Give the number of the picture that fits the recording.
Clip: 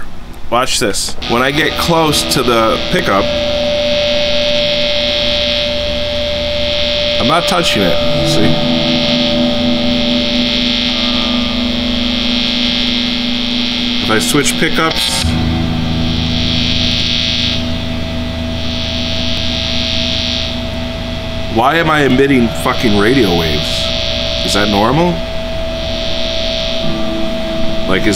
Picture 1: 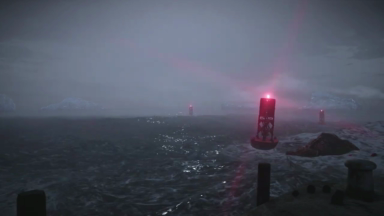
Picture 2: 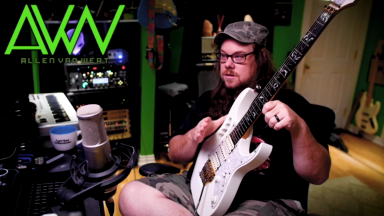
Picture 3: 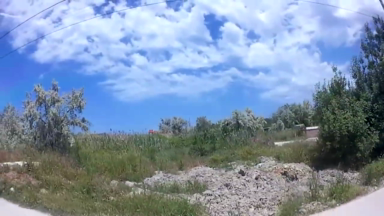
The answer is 2